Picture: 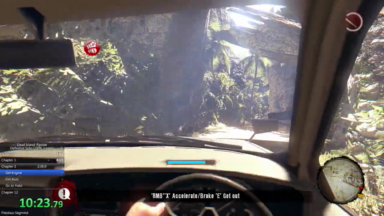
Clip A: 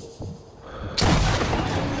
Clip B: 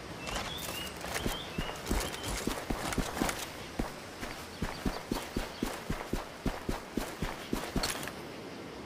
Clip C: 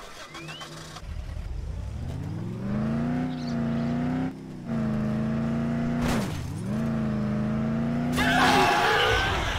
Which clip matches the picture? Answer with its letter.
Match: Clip C